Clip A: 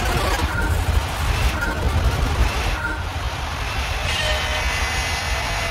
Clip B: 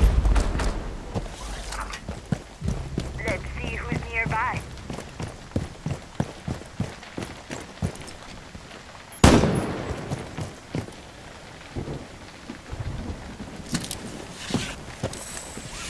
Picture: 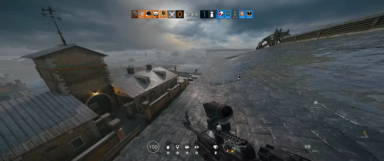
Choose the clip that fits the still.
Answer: B